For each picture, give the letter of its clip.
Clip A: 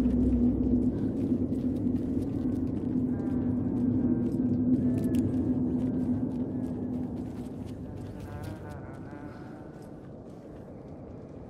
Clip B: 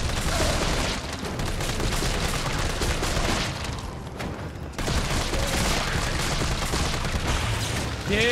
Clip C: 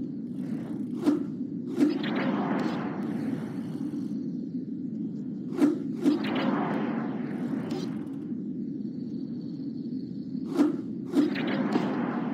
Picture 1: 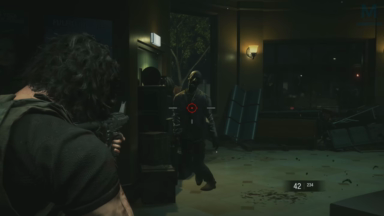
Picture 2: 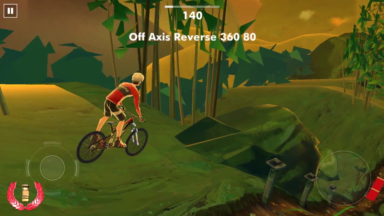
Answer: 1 B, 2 C